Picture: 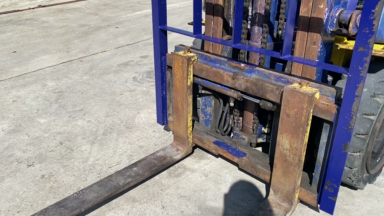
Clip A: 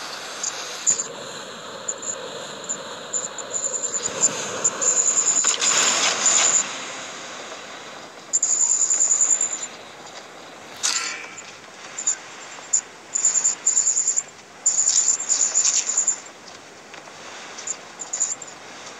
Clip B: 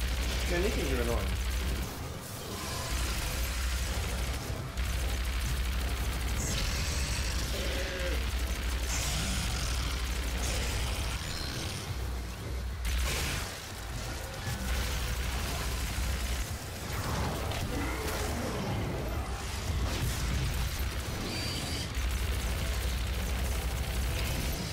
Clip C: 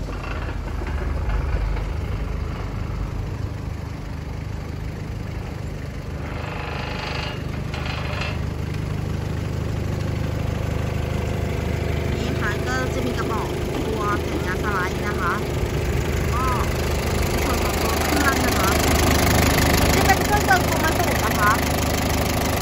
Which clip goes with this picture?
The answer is C